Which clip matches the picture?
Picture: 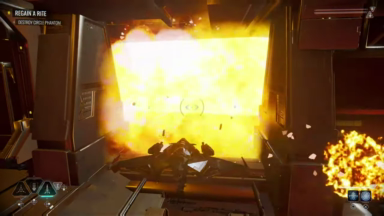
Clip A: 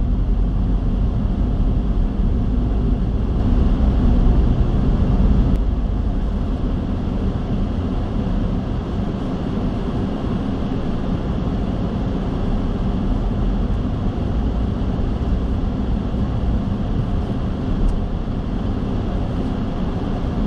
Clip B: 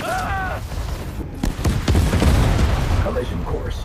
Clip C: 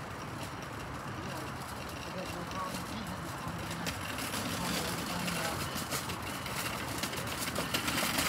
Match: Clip B